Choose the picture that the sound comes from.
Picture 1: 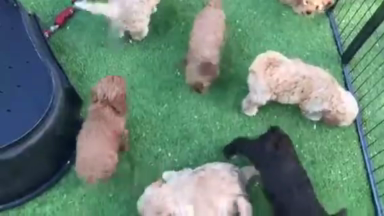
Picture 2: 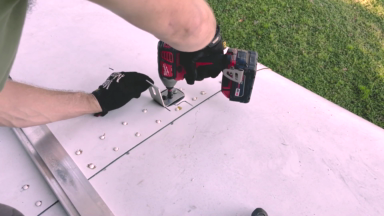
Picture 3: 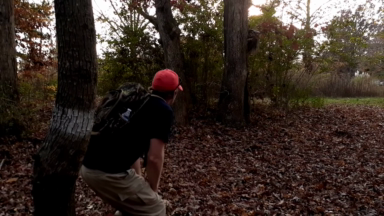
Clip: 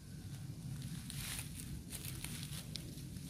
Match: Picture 3